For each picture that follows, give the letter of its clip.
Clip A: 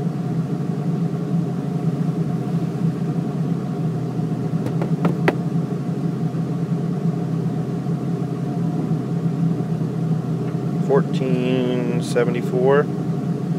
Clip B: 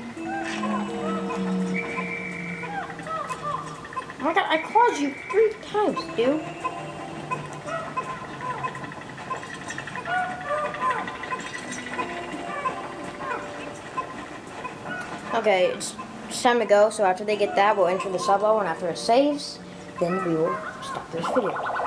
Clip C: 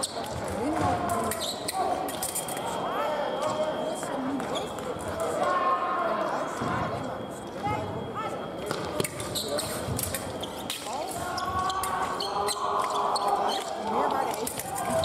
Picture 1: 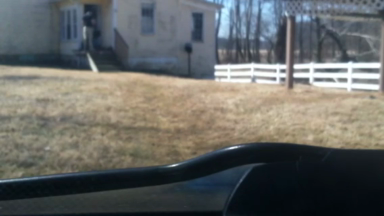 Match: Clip A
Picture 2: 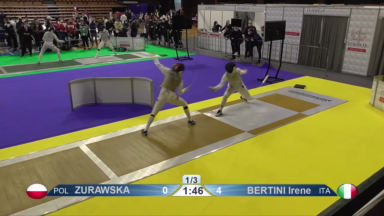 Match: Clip C